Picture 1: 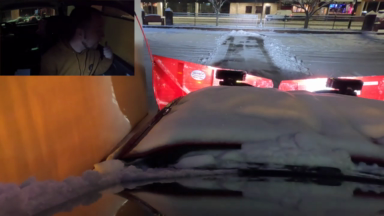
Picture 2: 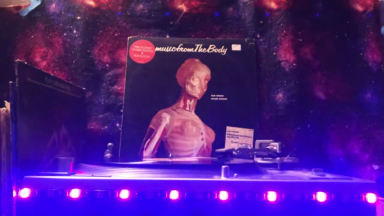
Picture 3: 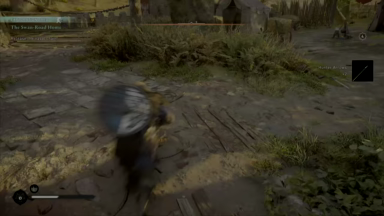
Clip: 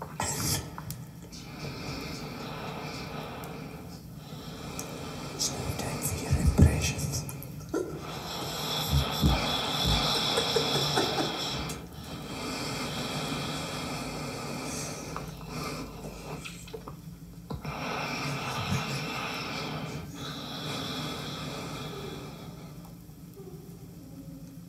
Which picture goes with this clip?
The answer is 2